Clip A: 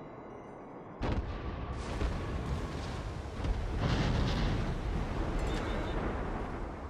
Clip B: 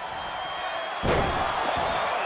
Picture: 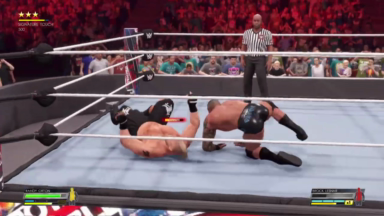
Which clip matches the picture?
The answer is B